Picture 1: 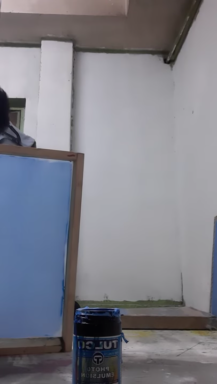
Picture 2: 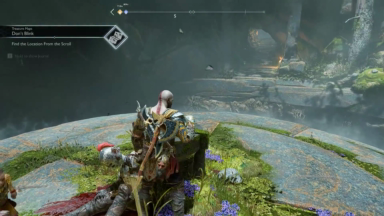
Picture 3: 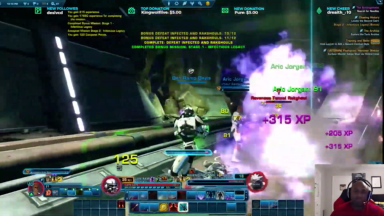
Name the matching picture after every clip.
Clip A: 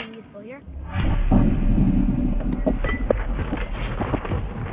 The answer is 2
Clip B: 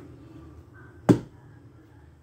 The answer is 1